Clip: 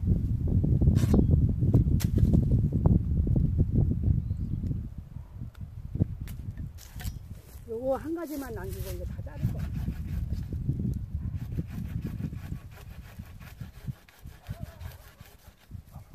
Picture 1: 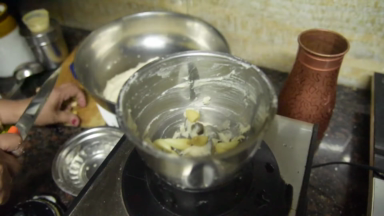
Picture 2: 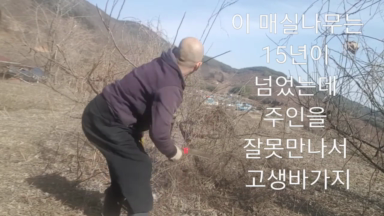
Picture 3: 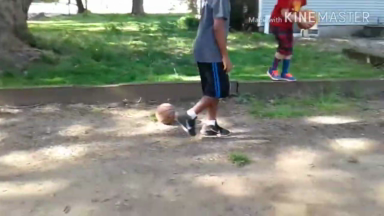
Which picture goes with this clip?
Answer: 2